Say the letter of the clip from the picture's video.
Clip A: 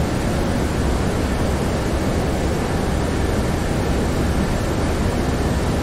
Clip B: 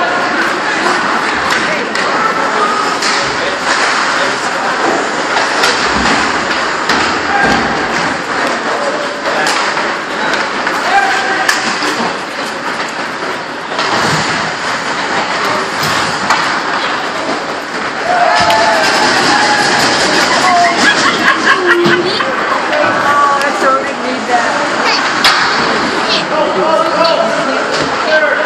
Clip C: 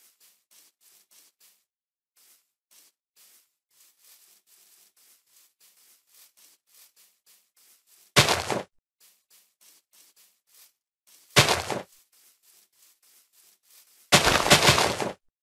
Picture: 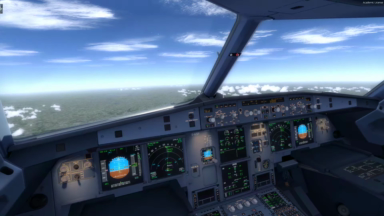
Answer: A